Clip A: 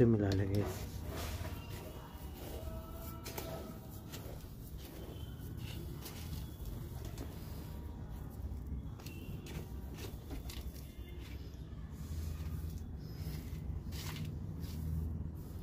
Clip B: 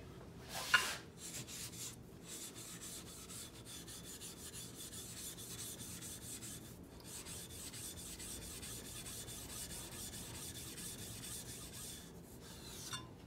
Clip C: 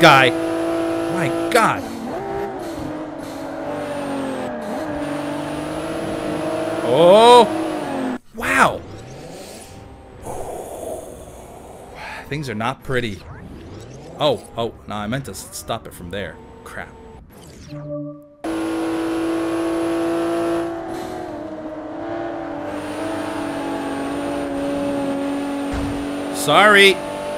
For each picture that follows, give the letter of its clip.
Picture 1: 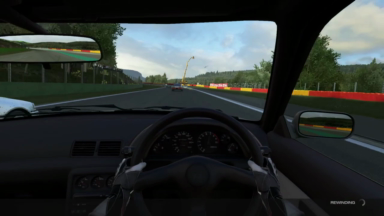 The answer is C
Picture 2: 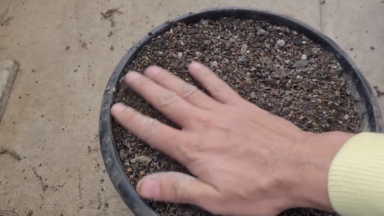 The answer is A